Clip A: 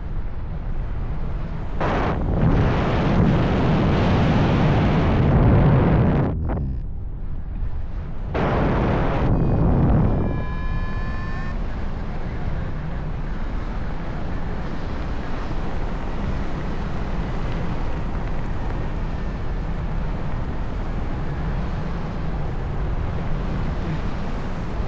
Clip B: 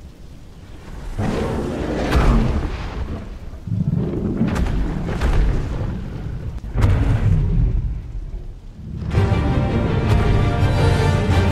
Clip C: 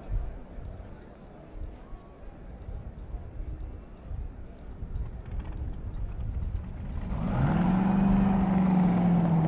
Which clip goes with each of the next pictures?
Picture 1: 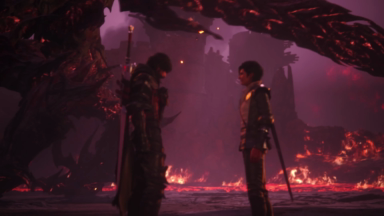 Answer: B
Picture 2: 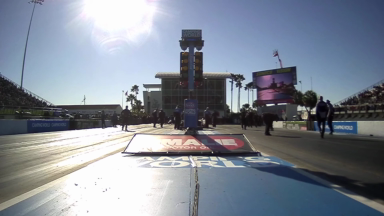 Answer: C